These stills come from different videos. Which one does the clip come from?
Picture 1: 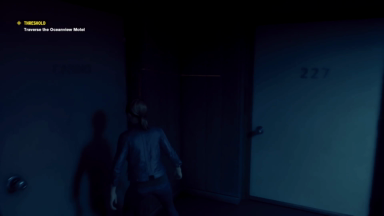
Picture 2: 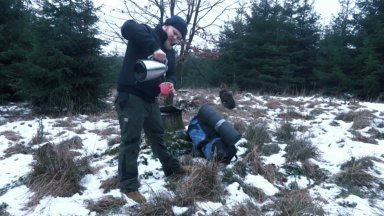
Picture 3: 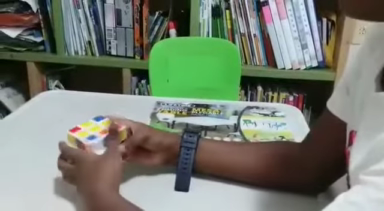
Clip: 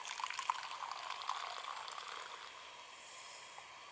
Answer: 2